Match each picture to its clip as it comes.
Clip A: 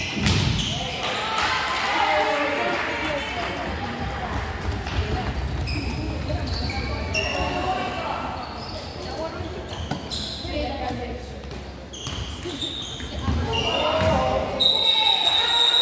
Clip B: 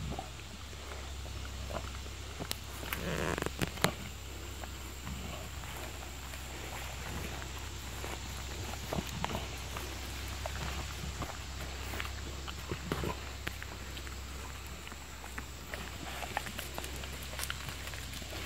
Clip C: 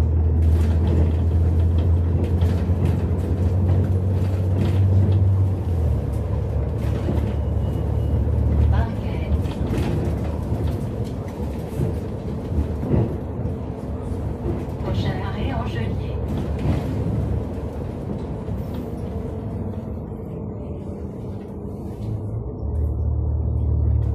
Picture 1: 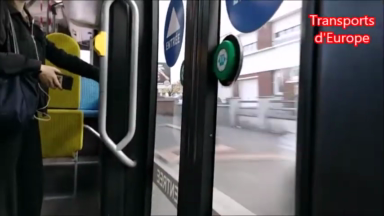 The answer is C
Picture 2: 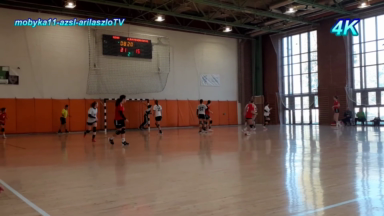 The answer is A